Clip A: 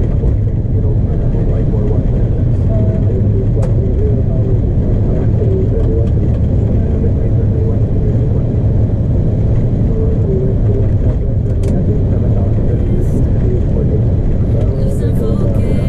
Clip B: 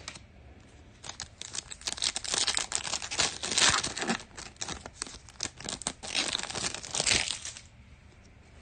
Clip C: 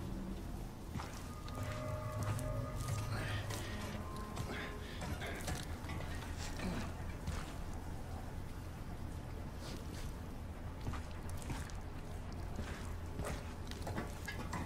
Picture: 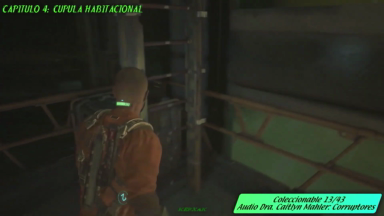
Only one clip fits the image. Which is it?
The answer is C